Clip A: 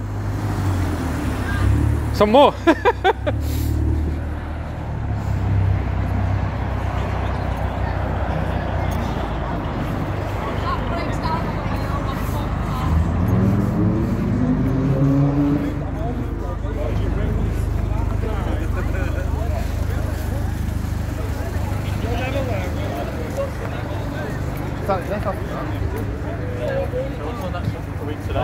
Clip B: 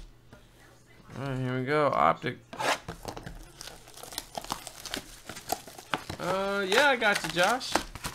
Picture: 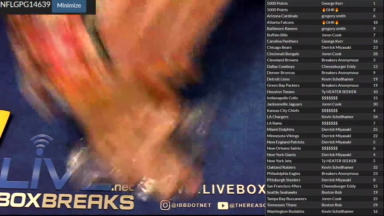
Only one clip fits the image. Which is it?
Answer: B